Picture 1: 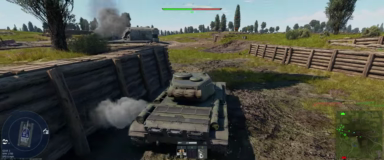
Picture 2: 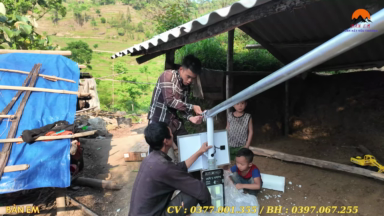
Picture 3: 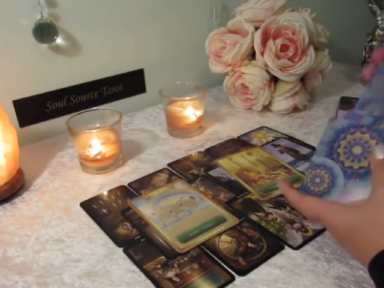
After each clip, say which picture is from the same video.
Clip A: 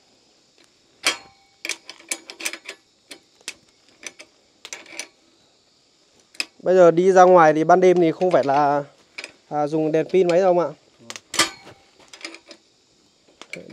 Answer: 2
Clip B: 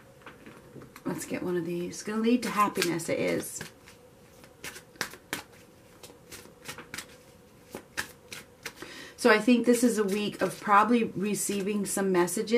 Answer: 3